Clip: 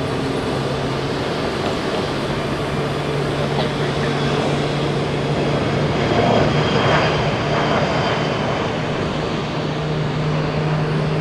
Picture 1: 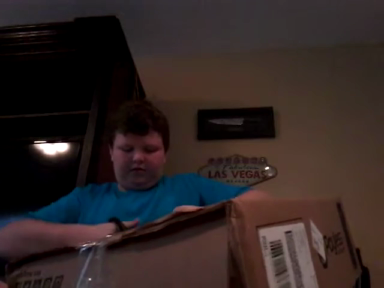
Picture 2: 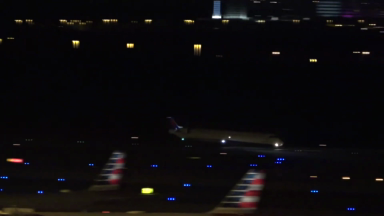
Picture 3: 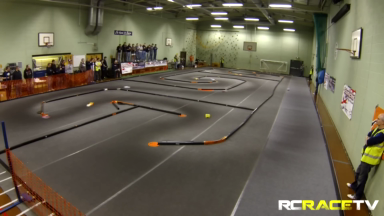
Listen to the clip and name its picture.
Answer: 2